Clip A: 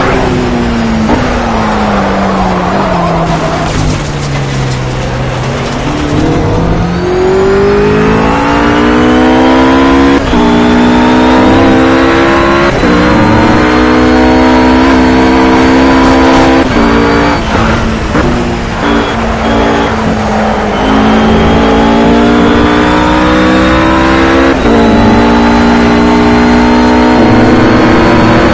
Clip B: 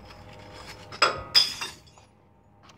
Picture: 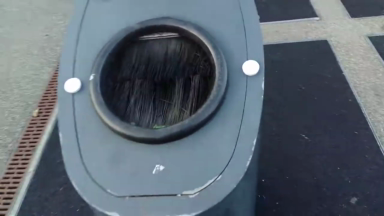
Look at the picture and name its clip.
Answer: B